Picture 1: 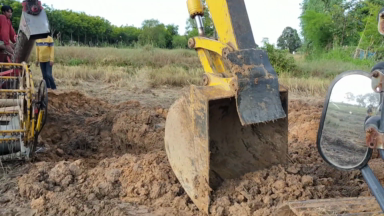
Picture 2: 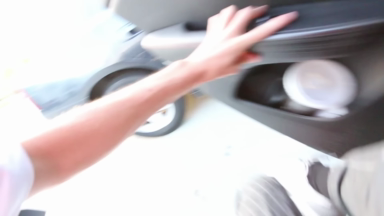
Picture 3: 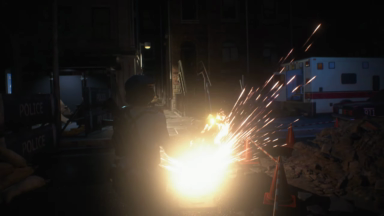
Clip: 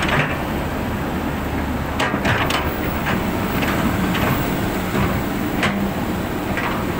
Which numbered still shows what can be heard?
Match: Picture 1